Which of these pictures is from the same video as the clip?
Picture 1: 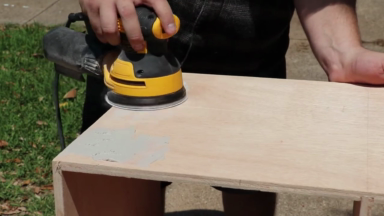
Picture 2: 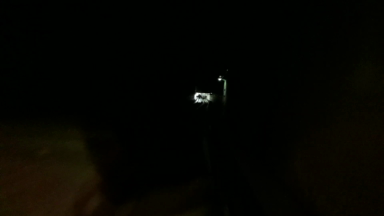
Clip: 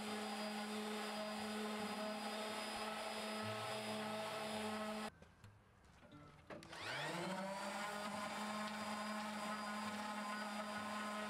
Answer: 1